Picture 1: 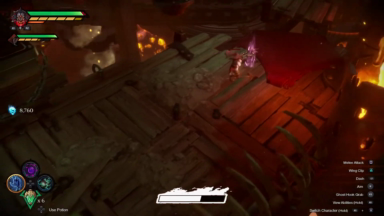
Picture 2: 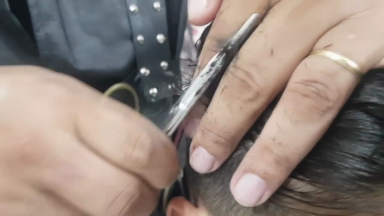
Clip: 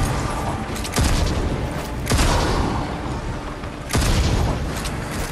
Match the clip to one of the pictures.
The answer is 1